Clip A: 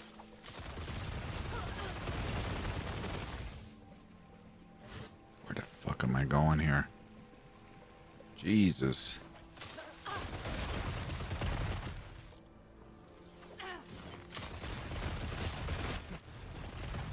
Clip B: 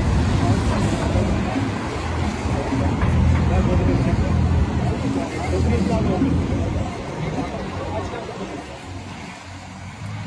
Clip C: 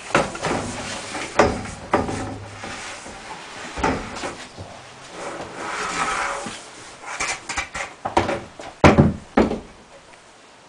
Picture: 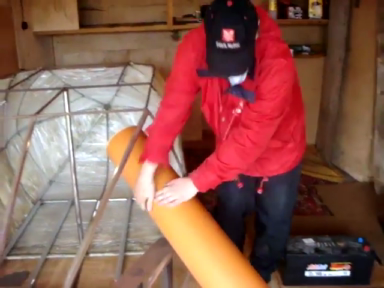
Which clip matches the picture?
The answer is C